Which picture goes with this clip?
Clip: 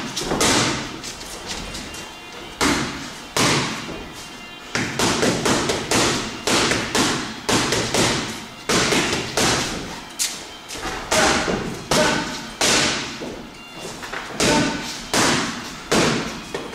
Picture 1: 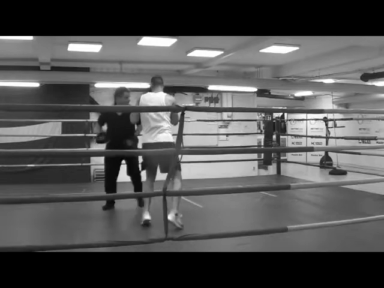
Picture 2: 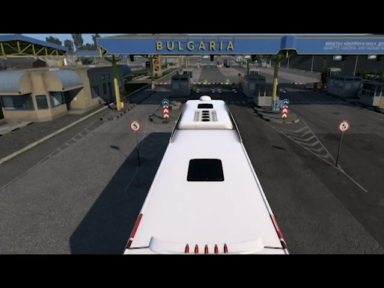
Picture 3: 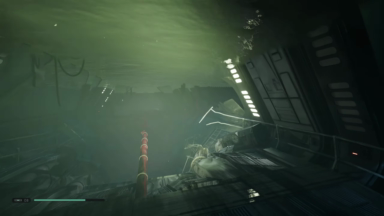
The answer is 1